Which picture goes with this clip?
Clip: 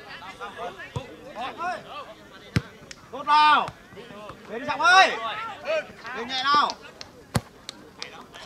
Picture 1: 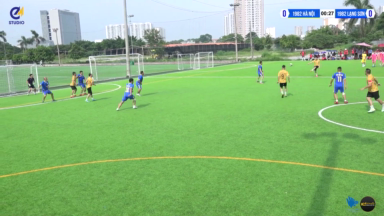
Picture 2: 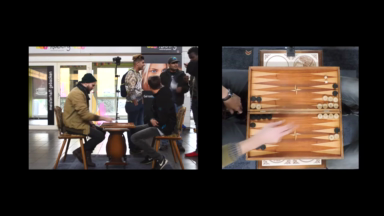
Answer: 1